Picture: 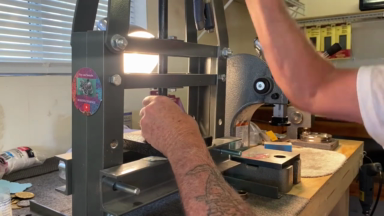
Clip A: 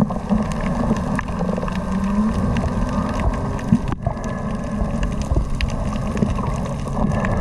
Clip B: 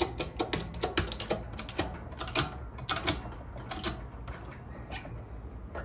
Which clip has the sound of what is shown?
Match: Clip B